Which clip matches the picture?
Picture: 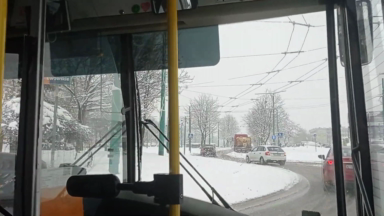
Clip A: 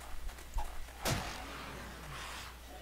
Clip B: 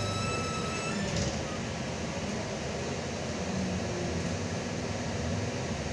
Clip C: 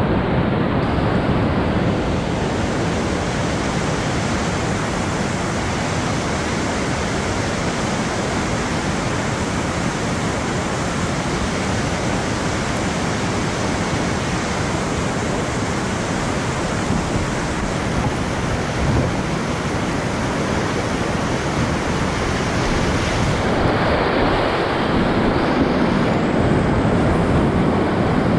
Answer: B